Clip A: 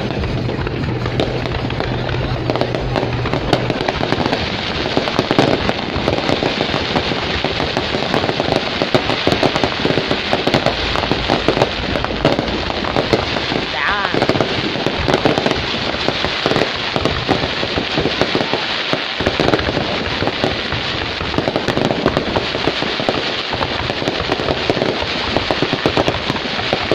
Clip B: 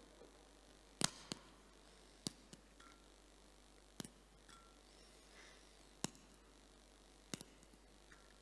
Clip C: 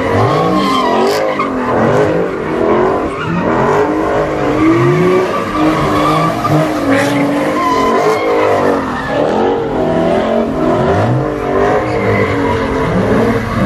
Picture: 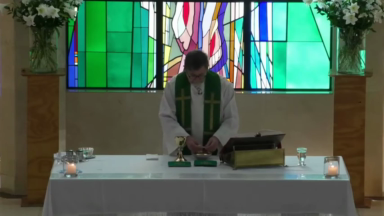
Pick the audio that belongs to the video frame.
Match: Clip B